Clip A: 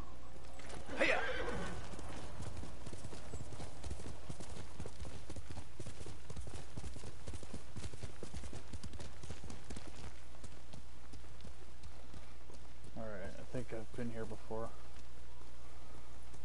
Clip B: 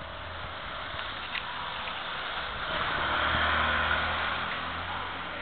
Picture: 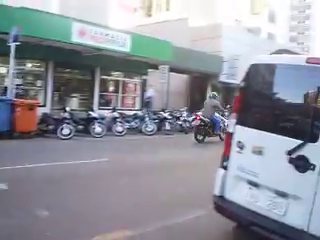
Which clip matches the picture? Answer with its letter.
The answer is B